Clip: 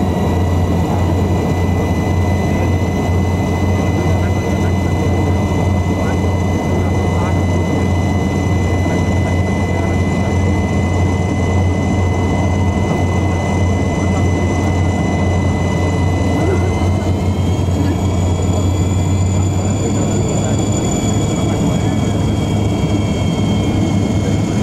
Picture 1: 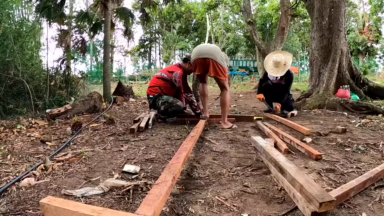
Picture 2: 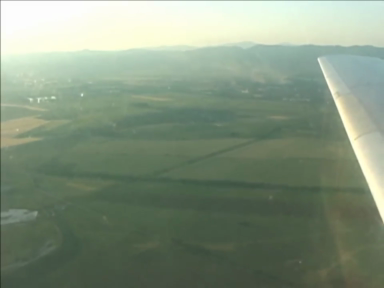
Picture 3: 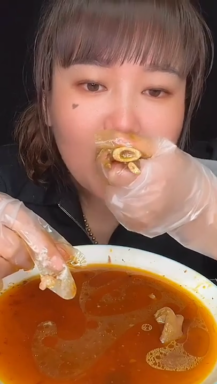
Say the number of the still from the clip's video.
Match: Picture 2